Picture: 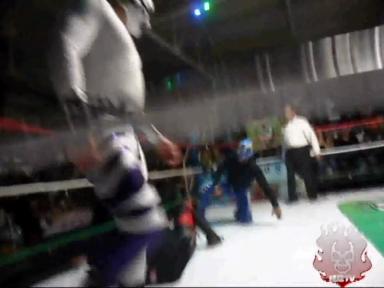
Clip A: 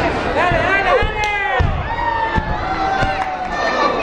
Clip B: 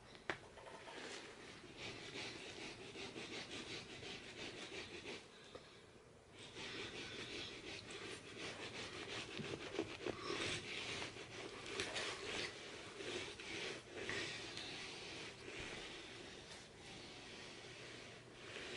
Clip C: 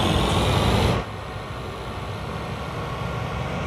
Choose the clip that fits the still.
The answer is A